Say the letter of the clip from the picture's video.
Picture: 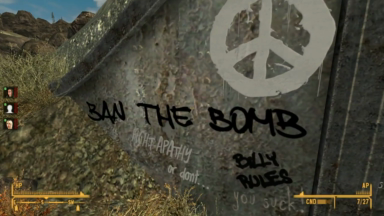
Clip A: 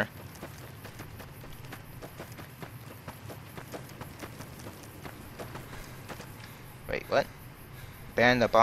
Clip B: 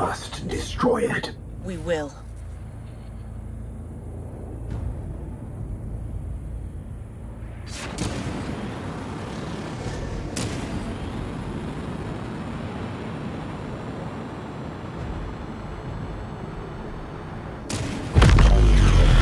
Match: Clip A